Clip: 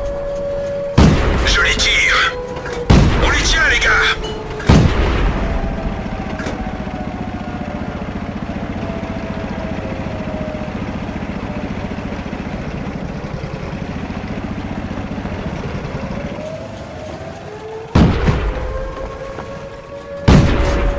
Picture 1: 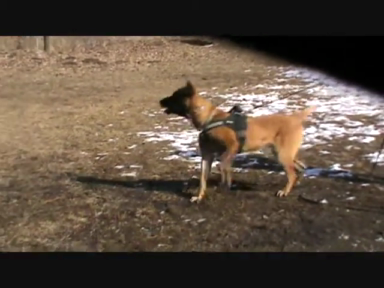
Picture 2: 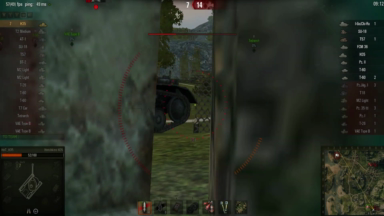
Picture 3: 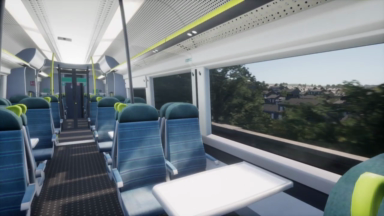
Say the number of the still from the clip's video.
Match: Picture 2